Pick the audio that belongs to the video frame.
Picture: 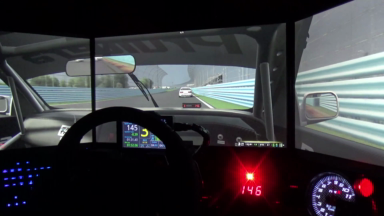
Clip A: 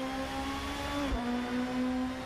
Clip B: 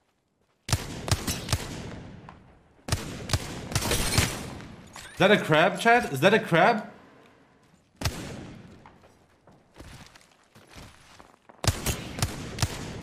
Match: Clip A